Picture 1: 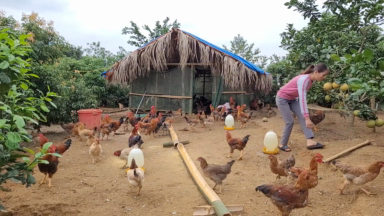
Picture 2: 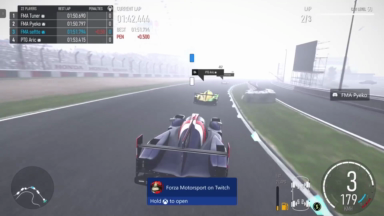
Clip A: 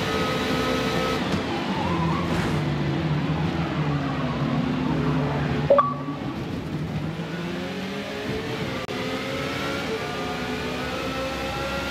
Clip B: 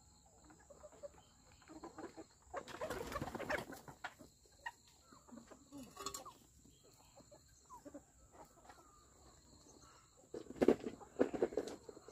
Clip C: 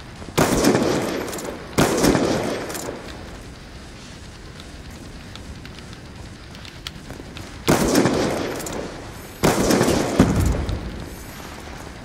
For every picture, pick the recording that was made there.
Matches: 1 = B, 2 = A